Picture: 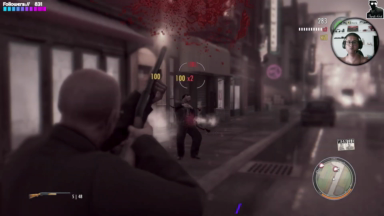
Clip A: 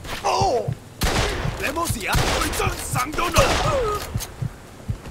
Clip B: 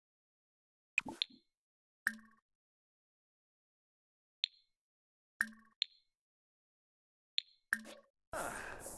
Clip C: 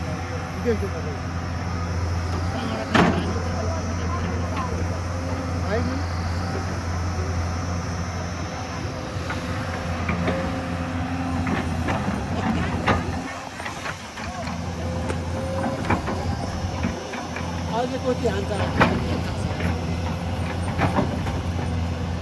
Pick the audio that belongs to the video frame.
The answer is A